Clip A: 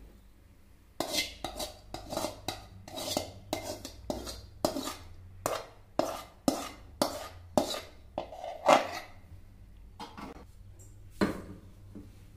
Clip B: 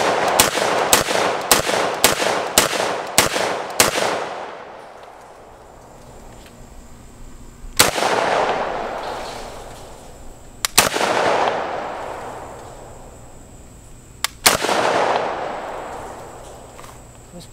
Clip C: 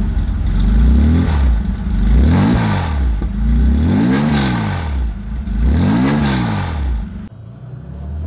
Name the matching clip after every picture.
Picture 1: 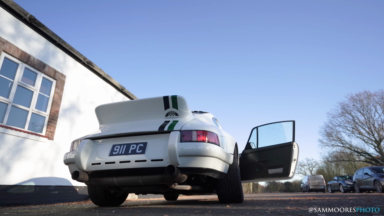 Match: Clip C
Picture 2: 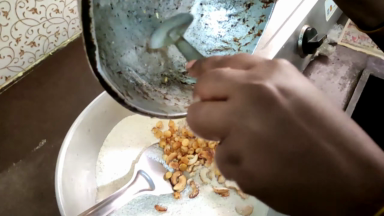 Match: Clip A